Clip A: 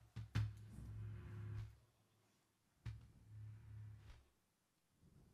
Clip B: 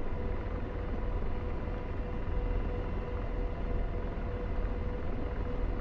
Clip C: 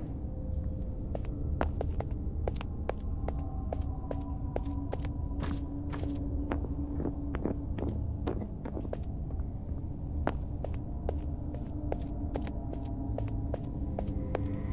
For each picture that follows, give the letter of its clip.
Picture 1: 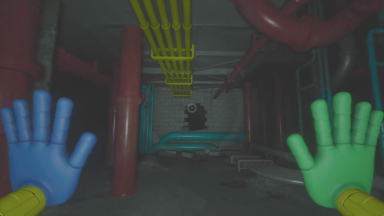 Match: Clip C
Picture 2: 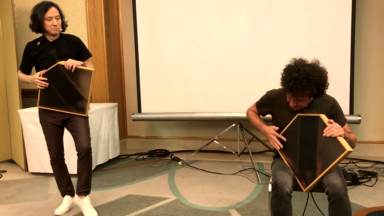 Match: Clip A